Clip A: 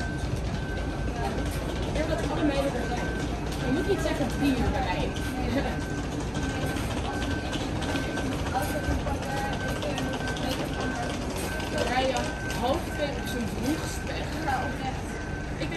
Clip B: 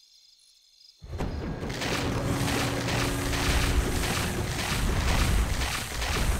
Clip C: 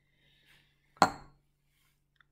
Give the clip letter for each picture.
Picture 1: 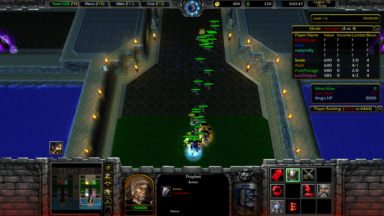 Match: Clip B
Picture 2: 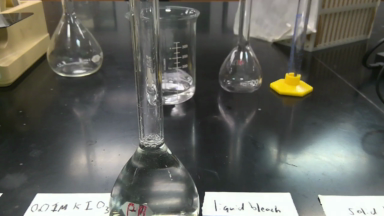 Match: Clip C